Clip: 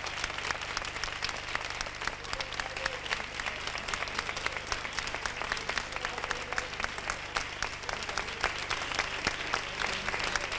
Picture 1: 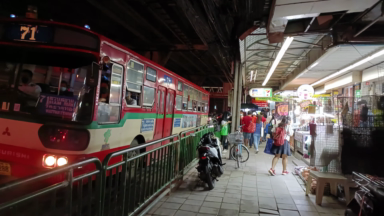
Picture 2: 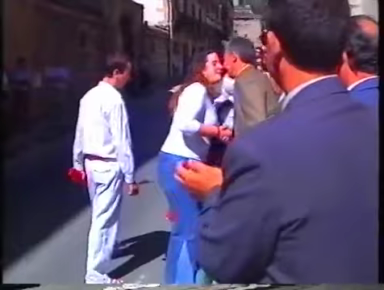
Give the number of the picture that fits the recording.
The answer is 2